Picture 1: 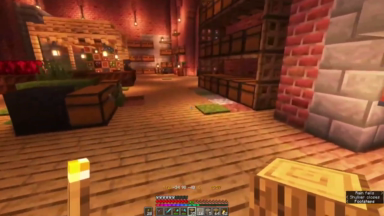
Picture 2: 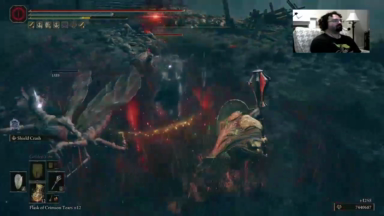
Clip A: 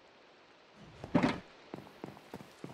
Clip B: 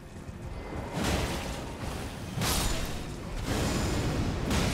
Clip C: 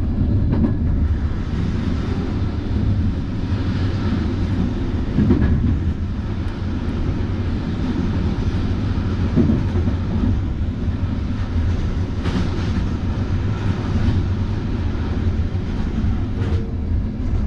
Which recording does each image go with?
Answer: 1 A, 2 B